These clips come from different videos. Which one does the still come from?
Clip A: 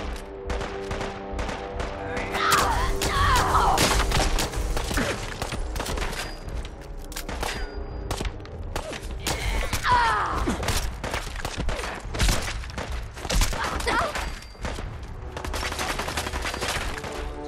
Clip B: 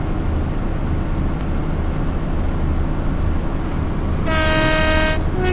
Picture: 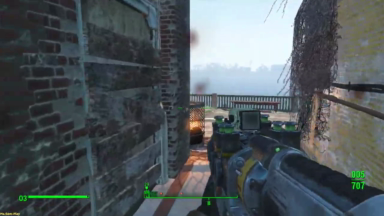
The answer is A